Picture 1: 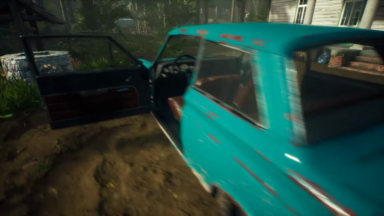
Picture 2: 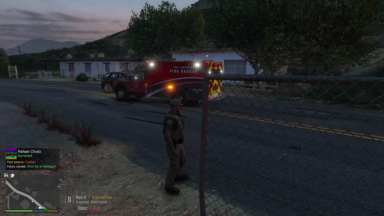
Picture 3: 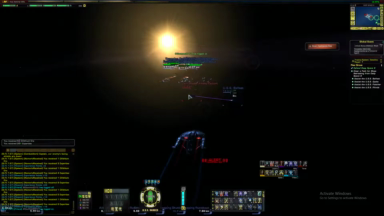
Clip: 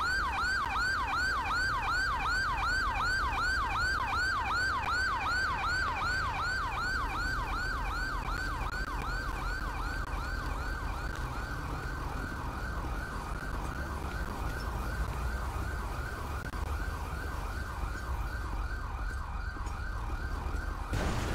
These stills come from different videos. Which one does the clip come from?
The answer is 2